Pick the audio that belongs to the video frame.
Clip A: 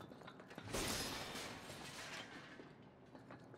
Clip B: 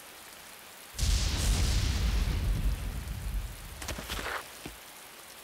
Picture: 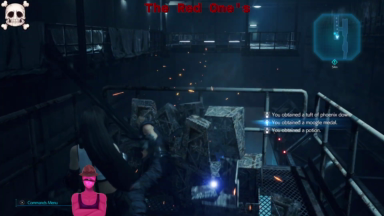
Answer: A